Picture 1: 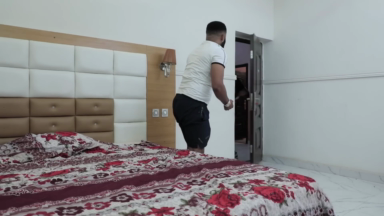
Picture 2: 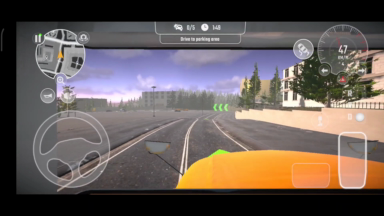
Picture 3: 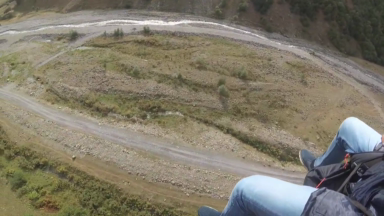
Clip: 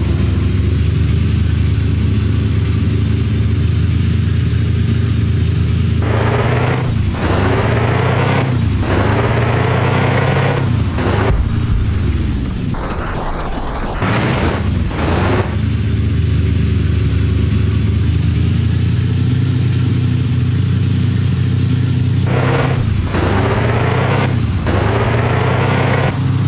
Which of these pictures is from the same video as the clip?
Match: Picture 2